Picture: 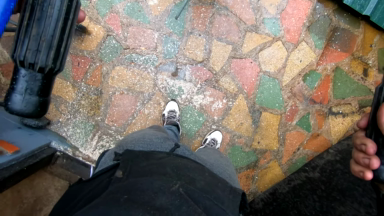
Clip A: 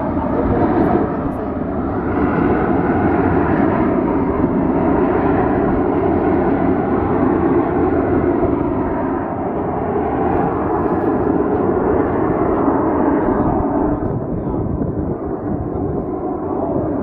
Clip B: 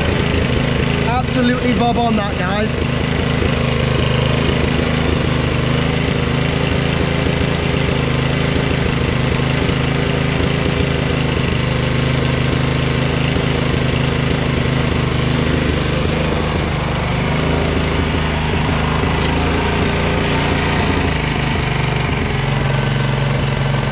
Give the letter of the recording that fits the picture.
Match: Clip B